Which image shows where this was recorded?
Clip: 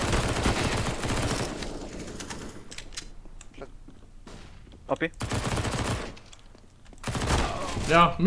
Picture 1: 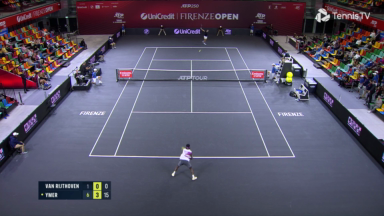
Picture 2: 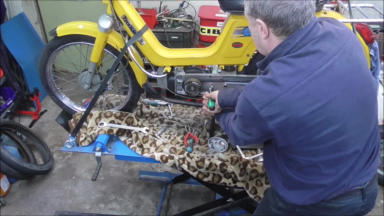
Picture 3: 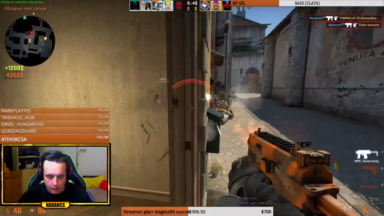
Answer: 3